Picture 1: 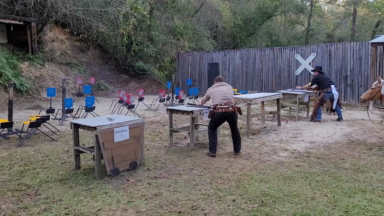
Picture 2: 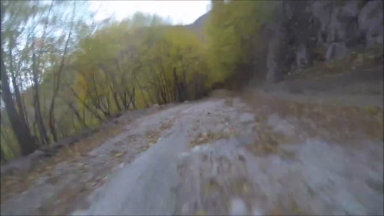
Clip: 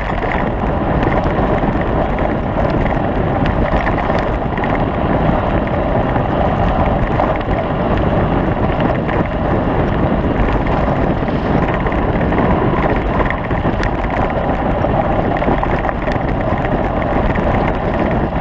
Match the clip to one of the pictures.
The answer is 2